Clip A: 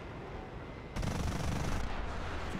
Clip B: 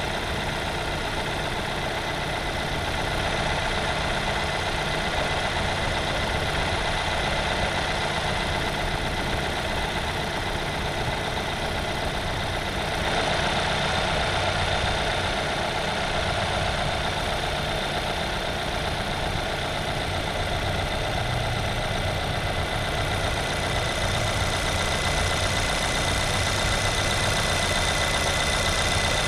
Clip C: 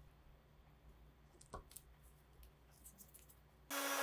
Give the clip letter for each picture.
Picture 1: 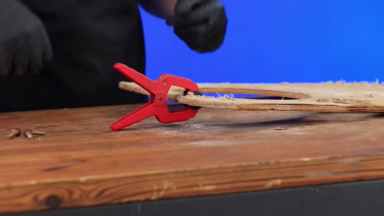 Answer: C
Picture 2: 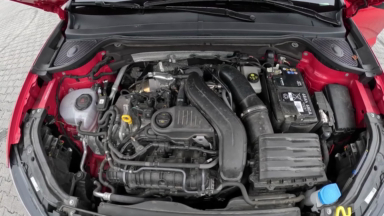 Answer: B